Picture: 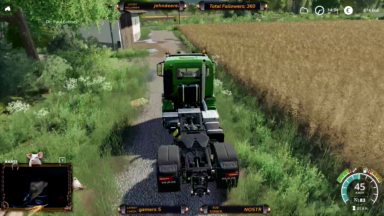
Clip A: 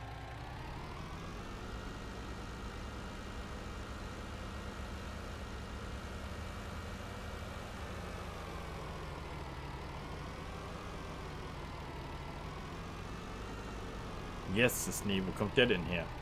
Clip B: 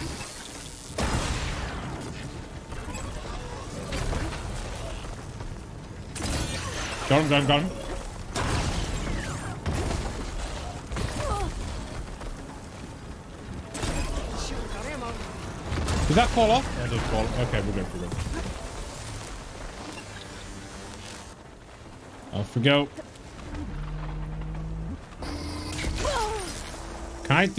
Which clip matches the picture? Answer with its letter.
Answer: A